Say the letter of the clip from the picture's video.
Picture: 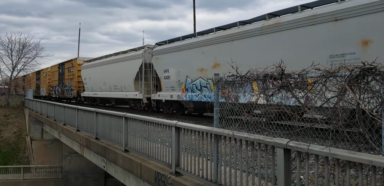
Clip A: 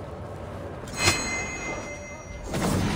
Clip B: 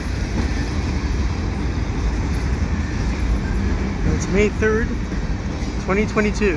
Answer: B